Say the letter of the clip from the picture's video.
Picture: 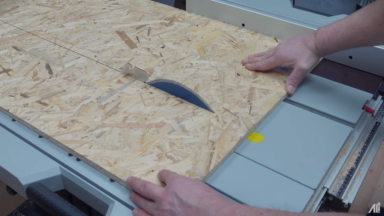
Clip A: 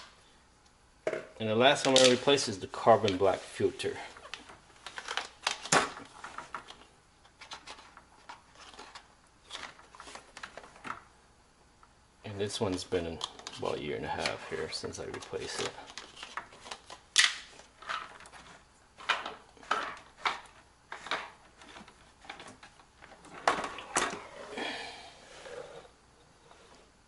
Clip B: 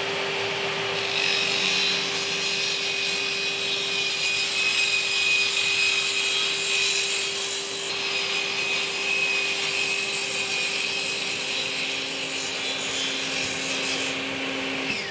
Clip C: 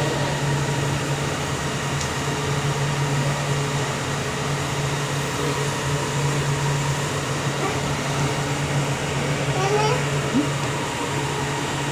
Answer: B